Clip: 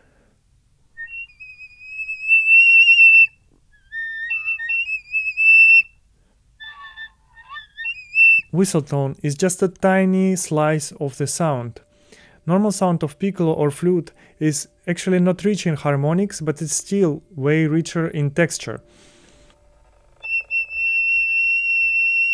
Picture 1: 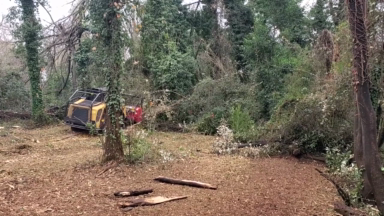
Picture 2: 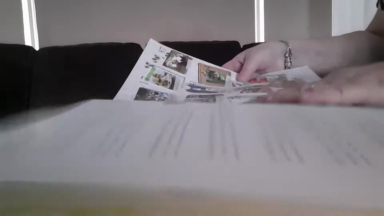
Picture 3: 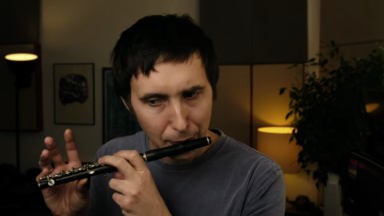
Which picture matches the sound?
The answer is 3